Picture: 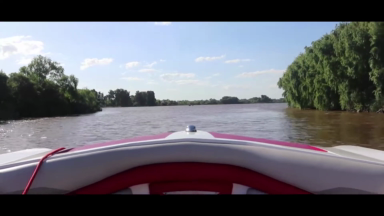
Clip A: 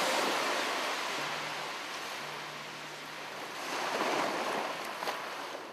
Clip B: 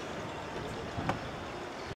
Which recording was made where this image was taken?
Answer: A